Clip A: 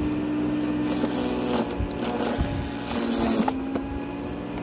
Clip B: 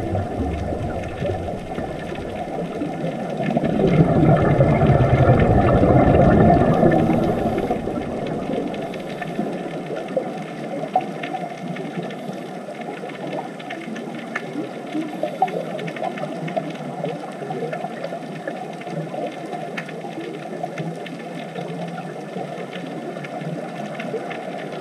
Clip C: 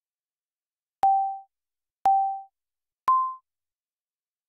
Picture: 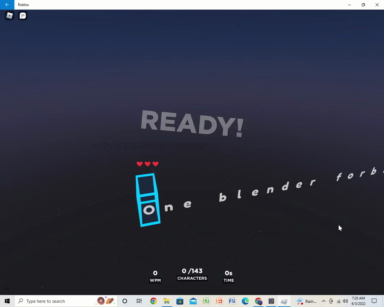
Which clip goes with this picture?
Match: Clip C